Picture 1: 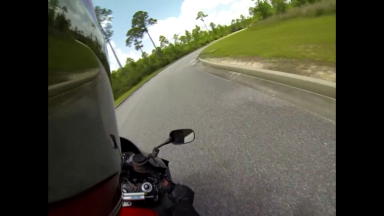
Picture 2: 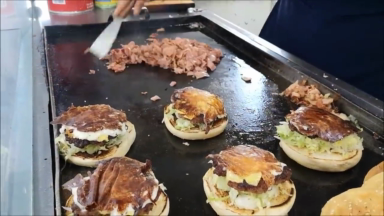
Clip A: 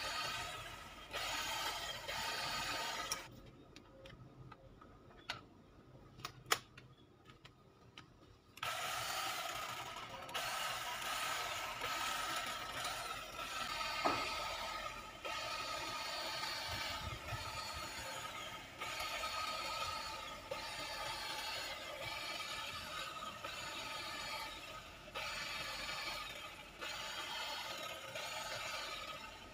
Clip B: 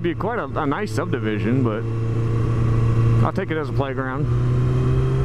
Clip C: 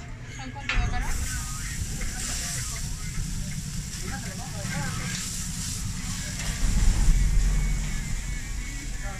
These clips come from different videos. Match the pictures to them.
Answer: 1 B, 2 C